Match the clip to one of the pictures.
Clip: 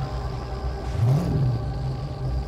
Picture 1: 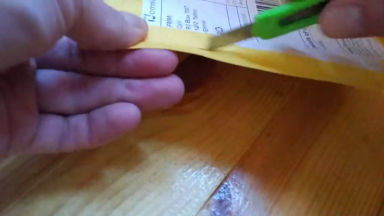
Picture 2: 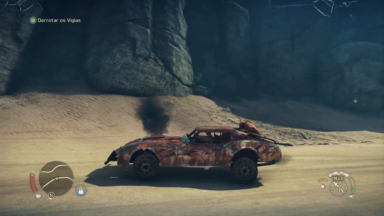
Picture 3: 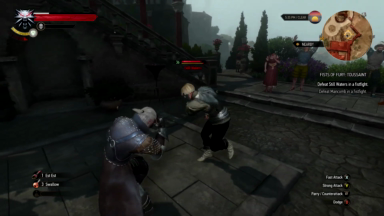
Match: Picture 2